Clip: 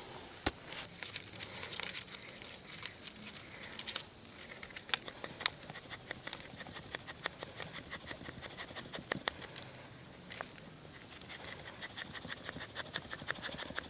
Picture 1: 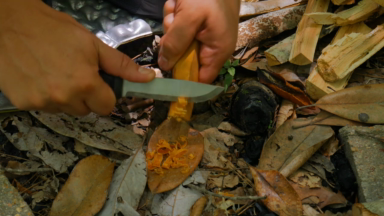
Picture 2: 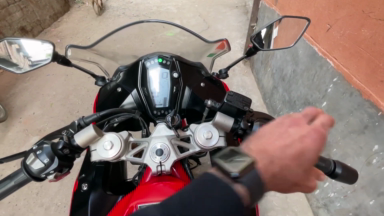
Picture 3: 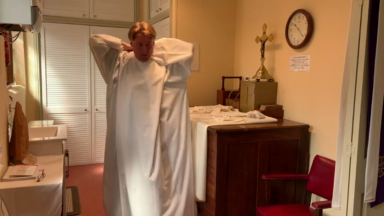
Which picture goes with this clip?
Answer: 1